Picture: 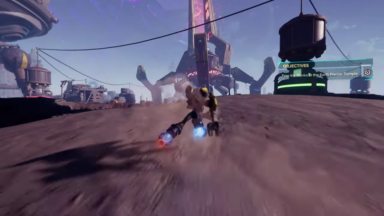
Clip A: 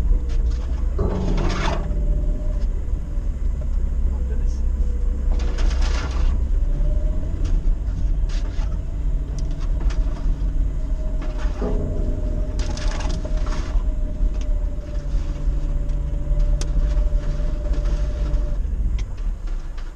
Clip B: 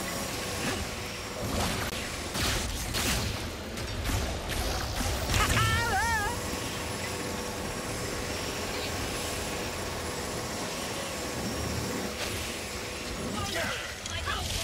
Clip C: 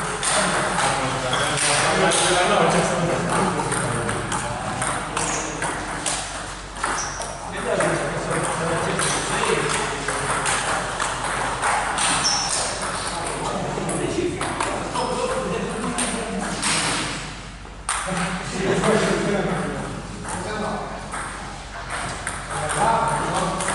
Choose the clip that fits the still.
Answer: B